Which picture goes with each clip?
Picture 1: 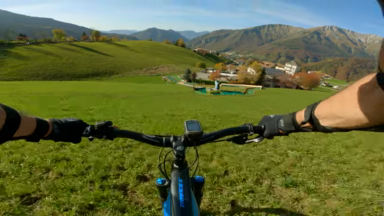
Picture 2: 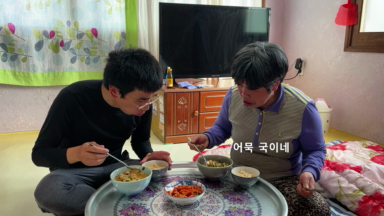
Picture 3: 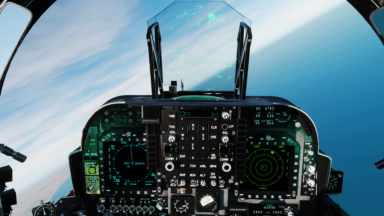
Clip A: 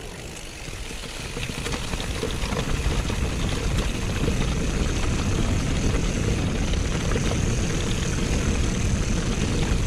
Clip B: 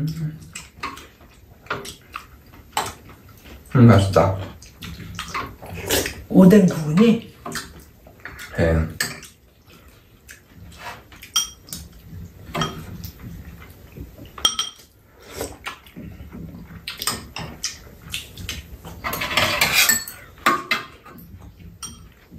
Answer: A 1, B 2